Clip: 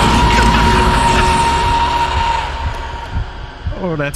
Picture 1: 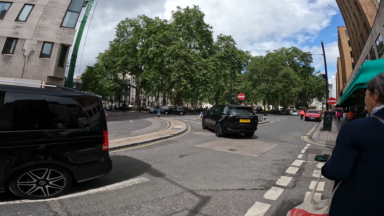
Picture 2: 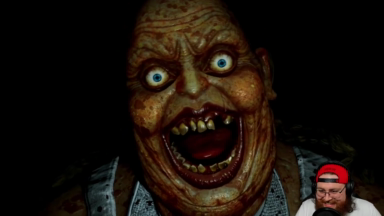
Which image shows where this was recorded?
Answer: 2